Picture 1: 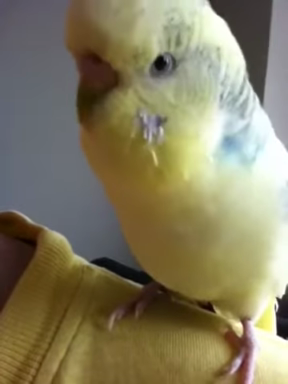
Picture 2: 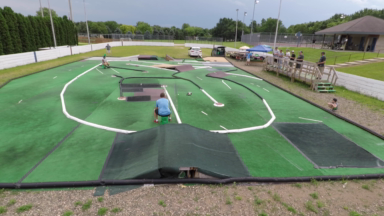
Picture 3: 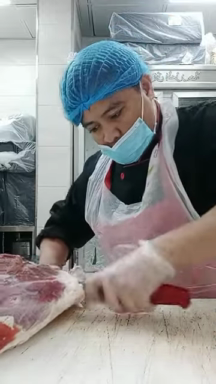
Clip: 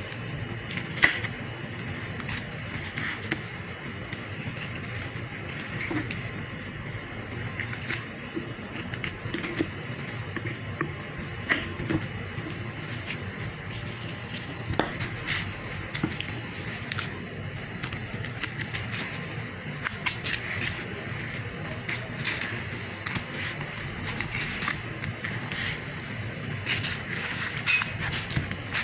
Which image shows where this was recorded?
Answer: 3